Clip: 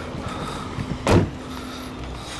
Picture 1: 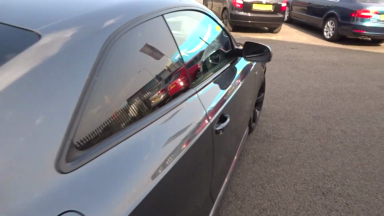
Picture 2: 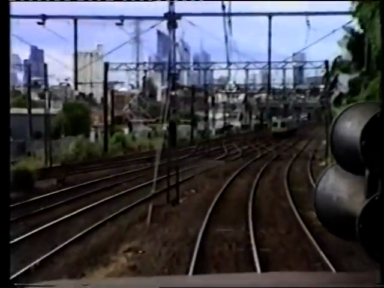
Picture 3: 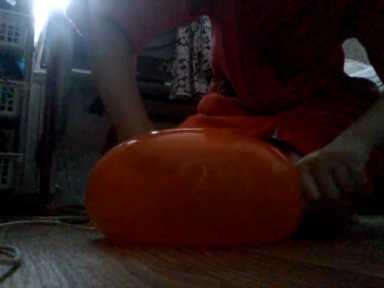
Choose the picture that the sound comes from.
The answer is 1